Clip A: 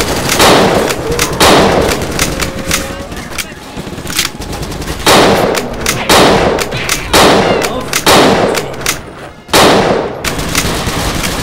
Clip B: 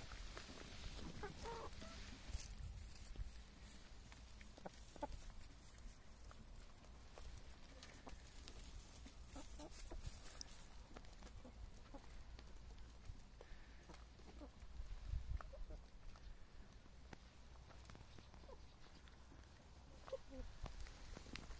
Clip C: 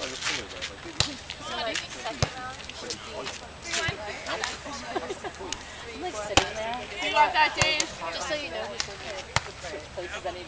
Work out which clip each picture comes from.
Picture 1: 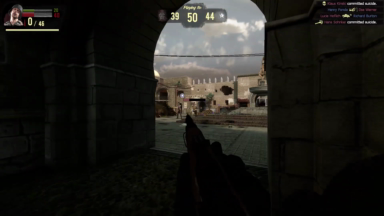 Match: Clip A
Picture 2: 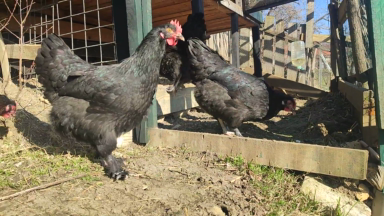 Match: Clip B